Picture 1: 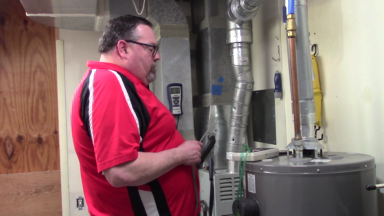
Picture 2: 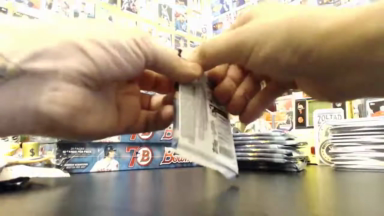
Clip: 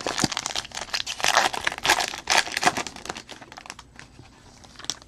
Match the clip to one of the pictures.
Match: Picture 2